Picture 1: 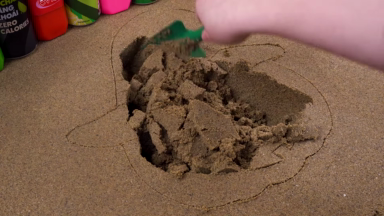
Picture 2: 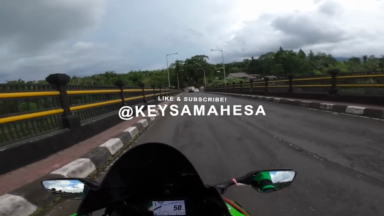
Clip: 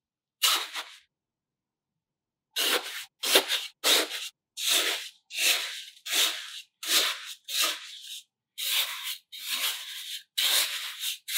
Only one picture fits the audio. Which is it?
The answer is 1